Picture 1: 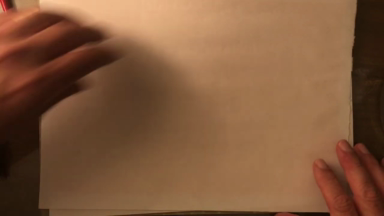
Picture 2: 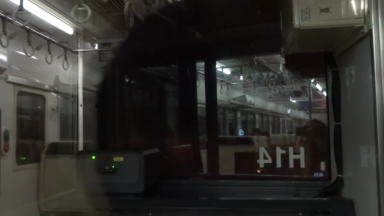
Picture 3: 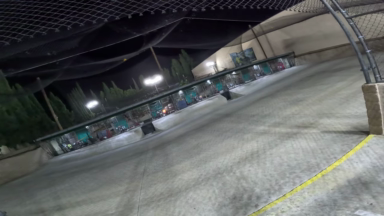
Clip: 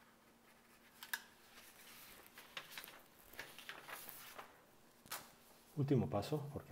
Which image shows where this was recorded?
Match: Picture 1